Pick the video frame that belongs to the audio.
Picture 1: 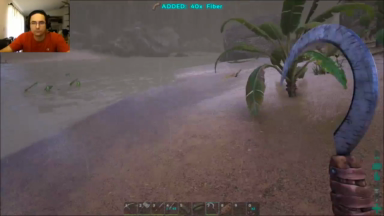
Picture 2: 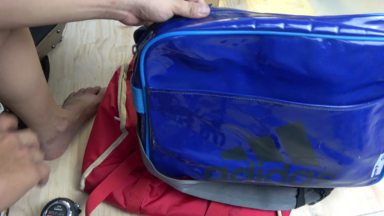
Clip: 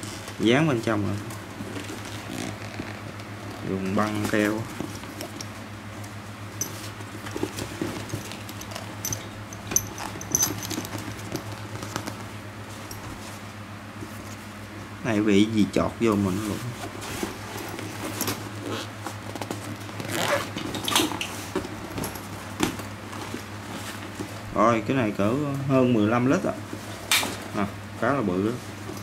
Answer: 2